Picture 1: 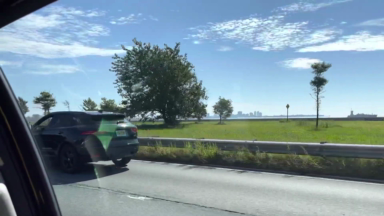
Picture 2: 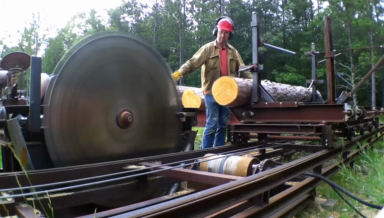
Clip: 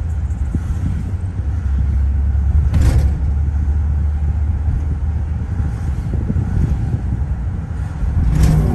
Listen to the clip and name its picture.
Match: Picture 1